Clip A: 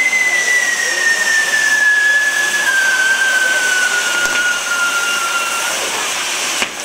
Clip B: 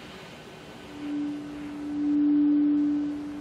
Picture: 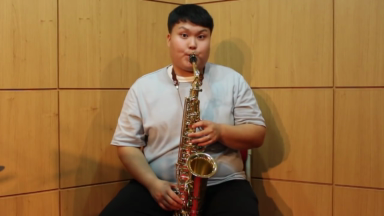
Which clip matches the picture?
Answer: B